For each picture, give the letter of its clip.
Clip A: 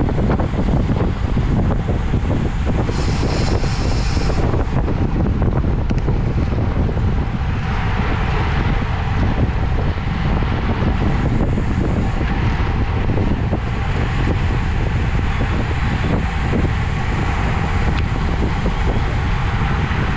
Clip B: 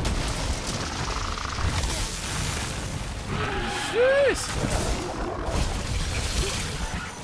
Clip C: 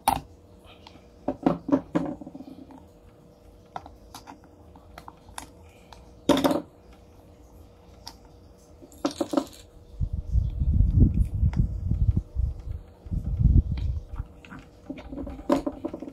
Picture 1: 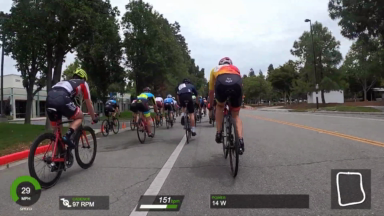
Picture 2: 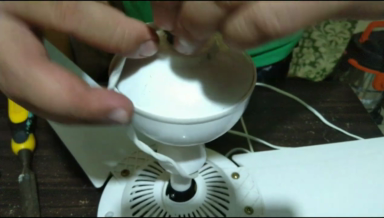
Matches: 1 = A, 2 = C